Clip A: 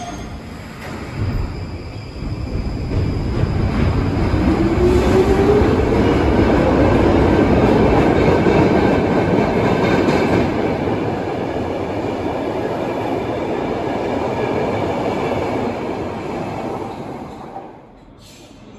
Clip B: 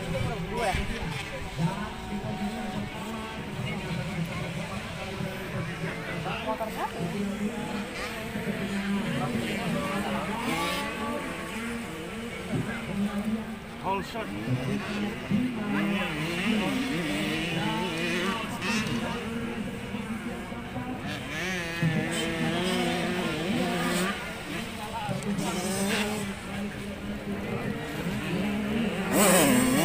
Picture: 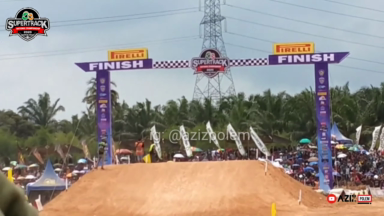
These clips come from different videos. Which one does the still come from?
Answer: B